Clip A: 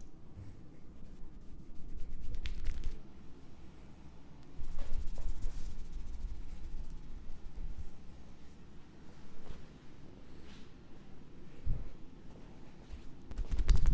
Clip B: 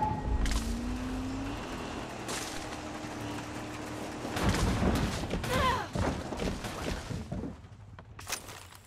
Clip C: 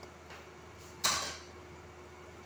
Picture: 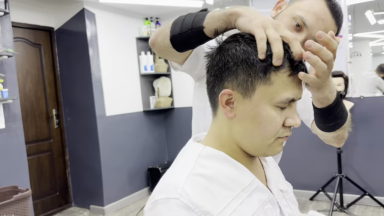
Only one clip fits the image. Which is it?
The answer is A